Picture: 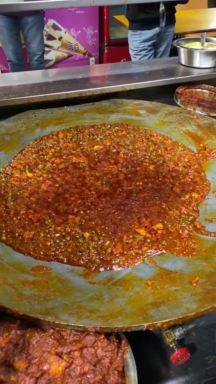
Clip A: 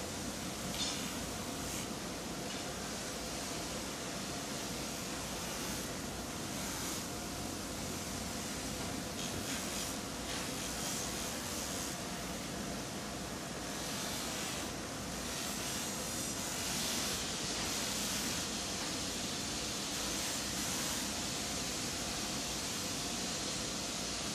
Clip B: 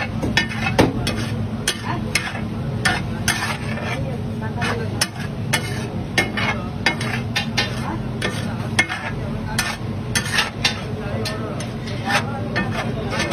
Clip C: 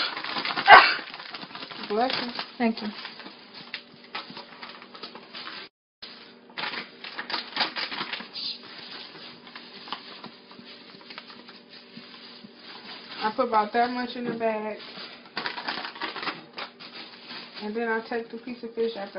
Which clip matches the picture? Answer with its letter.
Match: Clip B